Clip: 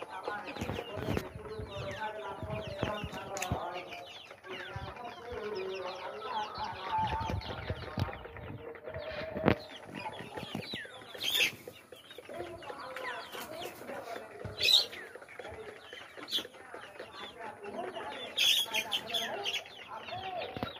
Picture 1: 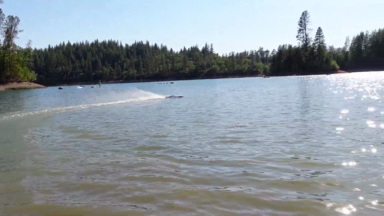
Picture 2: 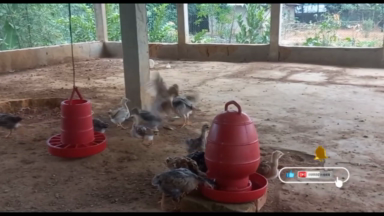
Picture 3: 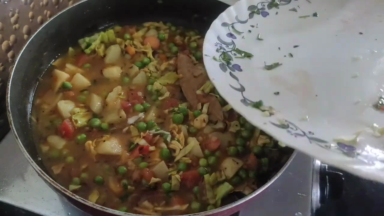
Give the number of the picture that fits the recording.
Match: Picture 2